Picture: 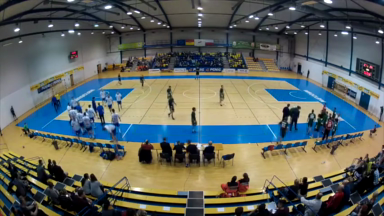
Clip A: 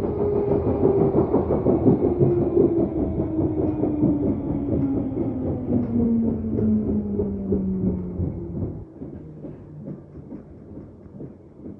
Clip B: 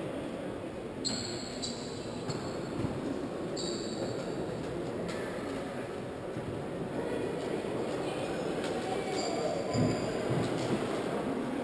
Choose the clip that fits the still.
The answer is B